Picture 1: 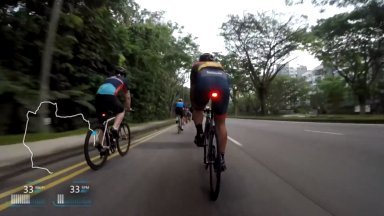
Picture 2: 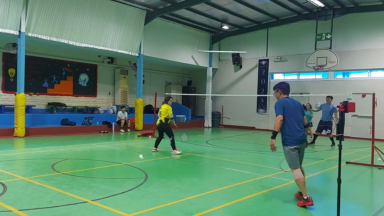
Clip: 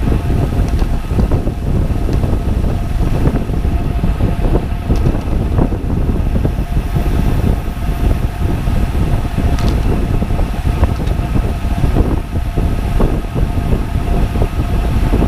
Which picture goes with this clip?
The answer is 1